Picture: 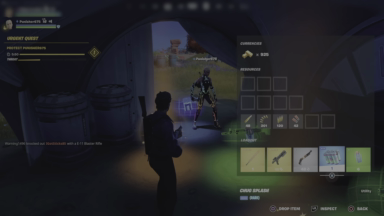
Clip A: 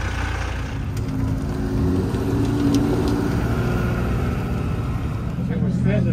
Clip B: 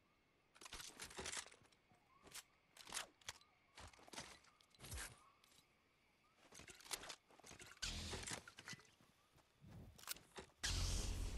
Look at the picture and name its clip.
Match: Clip B